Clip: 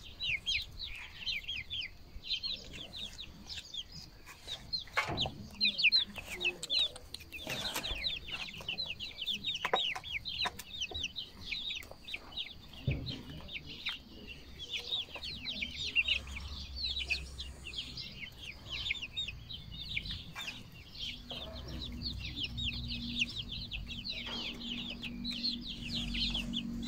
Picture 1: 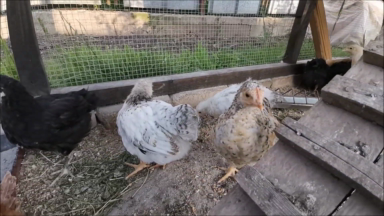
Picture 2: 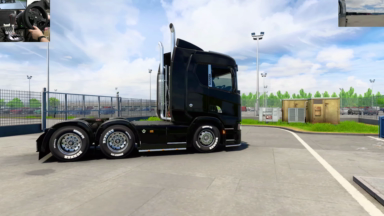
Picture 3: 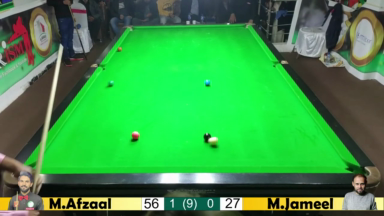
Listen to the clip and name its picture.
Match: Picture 1